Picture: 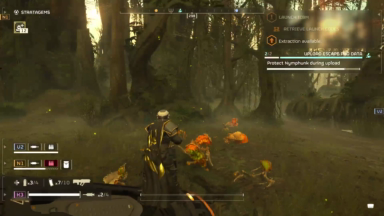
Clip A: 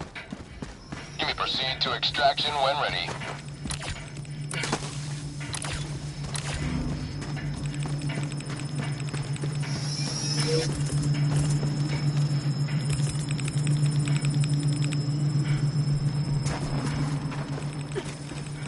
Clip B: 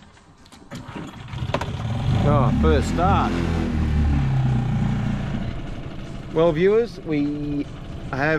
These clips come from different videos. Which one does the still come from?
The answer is A